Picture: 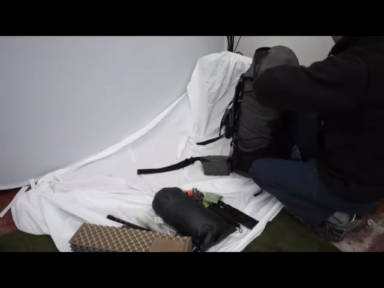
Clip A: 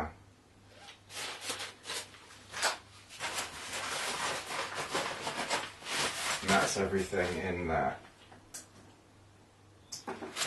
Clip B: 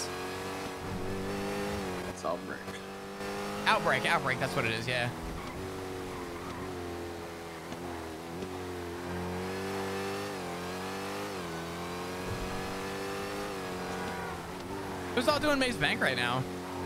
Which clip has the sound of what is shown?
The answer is A